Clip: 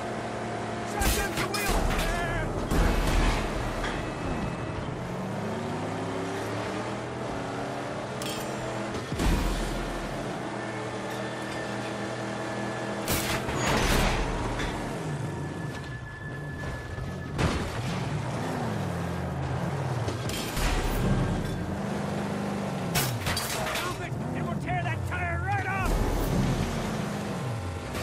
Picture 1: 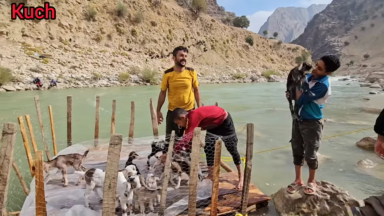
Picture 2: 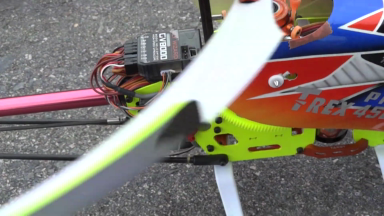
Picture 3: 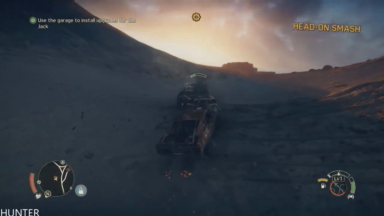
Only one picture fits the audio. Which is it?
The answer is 3